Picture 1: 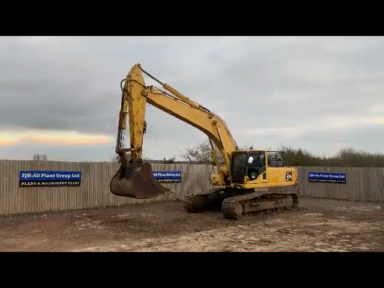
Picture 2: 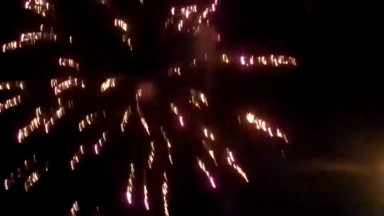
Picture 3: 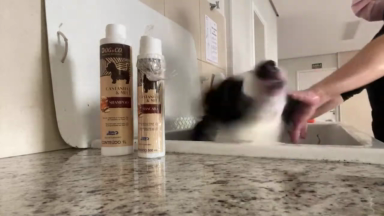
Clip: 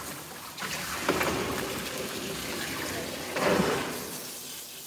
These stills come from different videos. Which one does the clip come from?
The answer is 3